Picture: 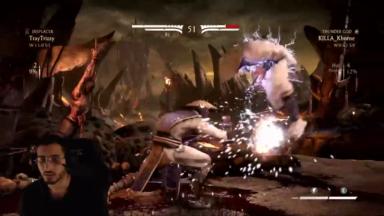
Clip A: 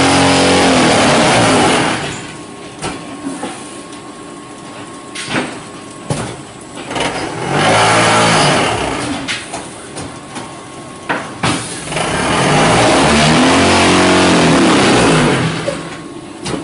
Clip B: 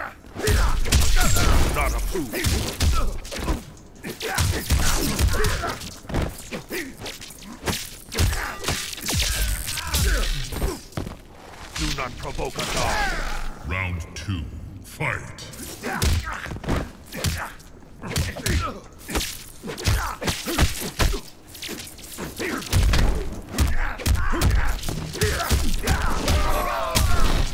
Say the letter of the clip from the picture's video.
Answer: B